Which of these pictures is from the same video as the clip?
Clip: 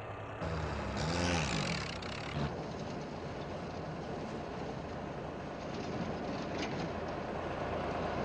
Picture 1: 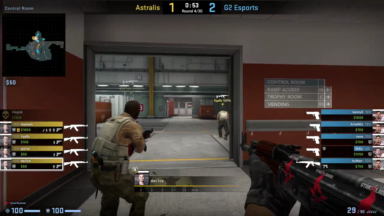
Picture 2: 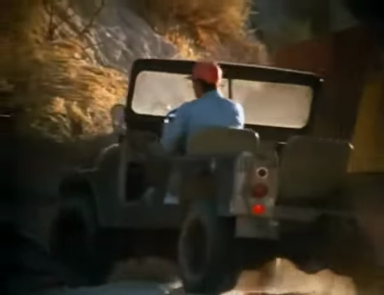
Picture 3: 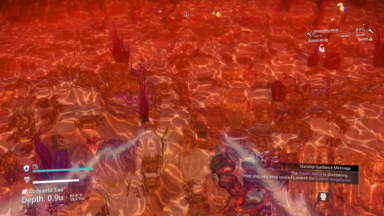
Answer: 2